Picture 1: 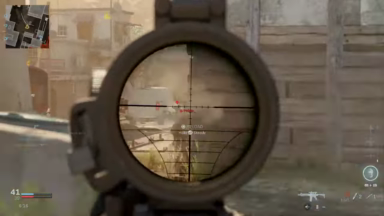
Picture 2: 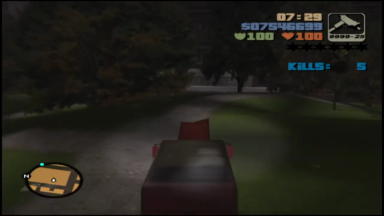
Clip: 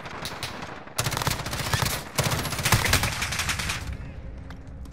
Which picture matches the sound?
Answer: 1